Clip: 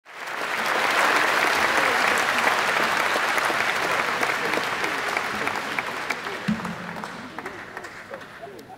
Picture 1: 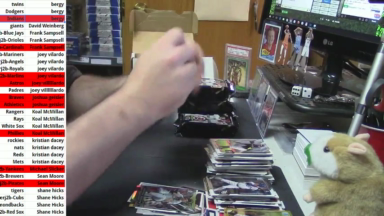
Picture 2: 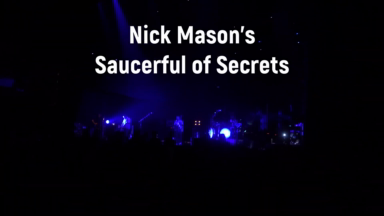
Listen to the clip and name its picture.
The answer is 2